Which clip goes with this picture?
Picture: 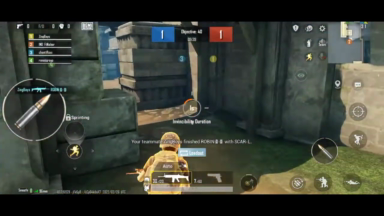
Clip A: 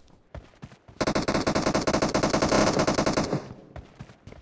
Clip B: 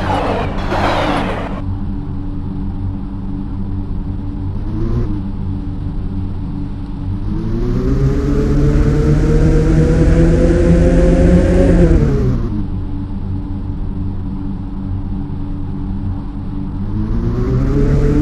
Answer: A